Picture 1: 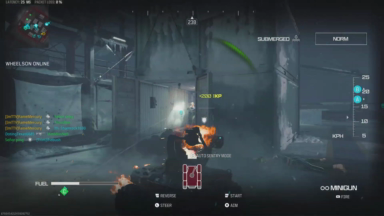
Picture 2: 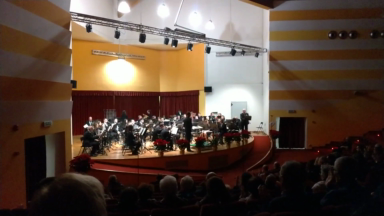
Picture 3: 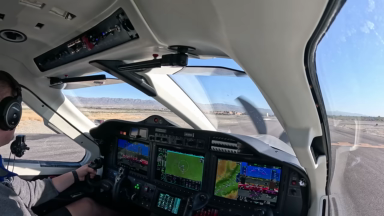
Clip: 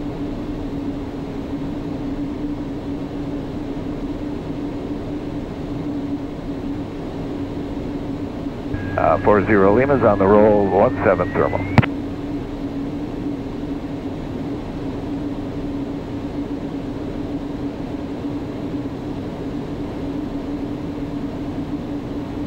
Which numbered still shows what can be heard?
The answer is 3